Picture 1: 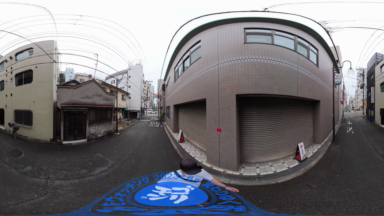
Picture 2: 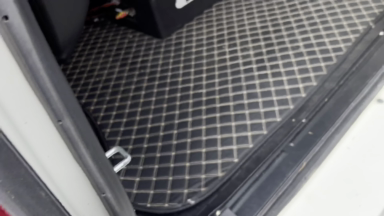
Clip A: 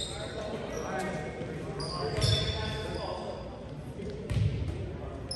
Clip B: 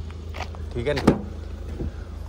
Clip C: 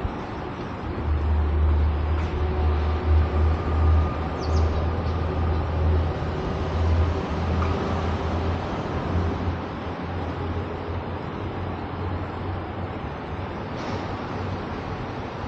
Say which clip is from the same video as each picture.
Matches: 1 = C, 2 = B